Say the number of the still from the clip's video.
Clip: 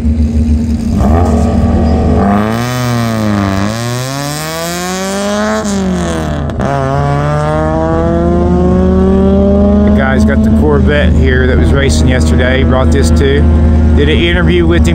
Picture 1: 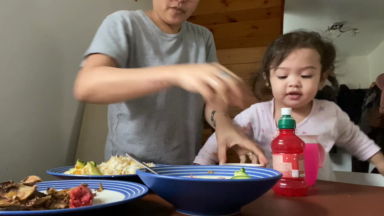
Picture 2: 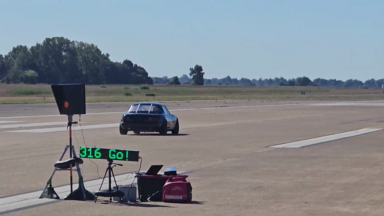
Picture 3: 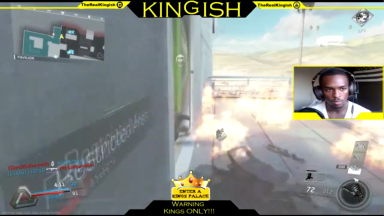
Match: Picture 2